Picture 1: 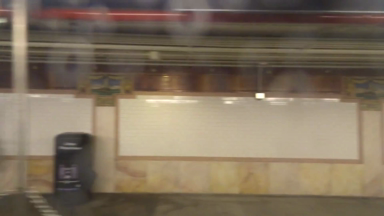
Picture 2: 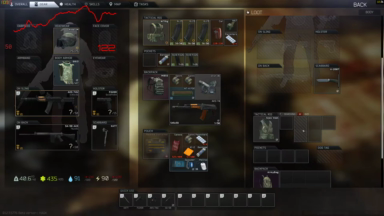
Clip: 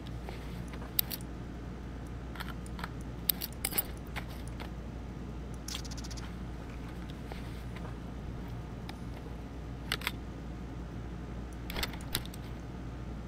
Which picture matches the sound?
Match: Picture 2